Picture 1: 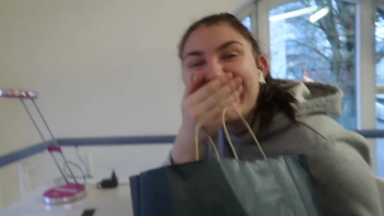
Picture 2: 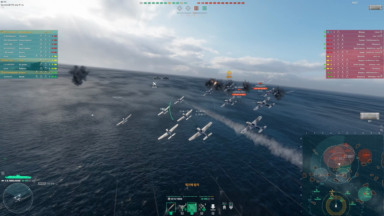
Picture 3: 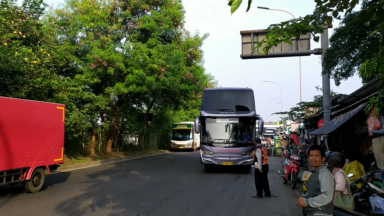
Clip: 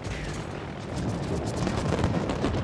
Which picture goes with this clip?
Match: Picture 2